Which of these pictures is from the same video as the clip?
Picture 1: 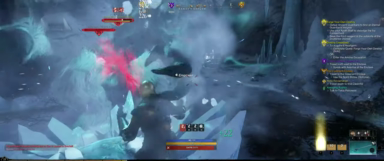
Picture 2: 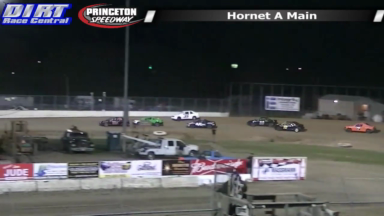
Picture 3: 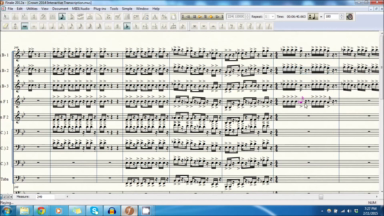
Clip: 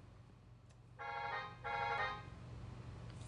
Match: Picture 3